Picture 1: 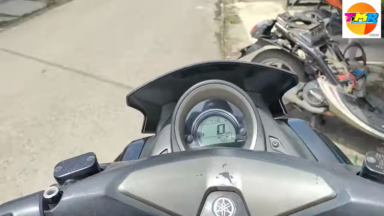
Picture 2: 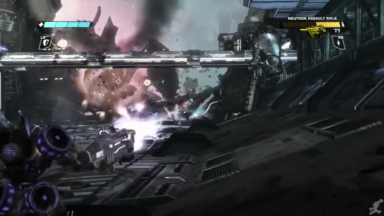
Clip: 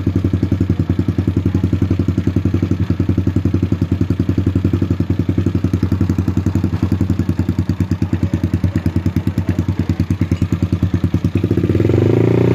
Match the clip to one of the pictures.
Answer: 1